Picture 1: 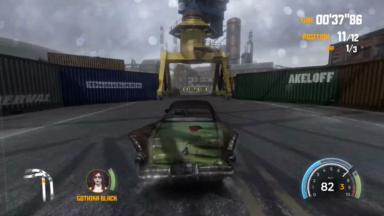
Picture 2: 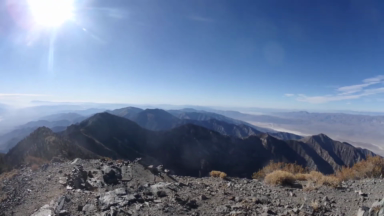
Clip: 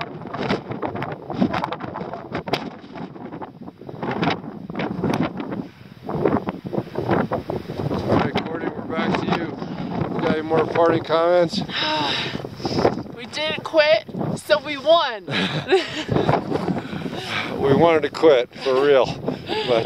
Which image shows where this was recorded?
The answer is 2